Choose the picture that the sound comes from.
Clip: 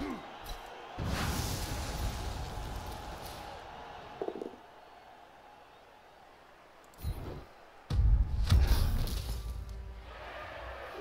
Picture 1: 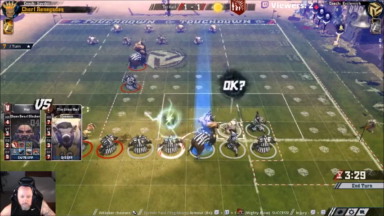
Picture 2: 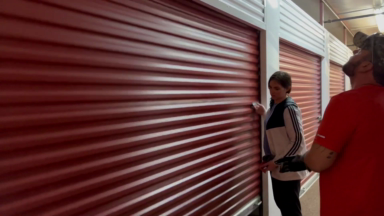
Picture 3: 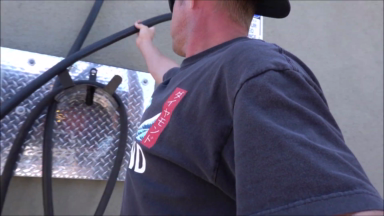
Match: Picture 1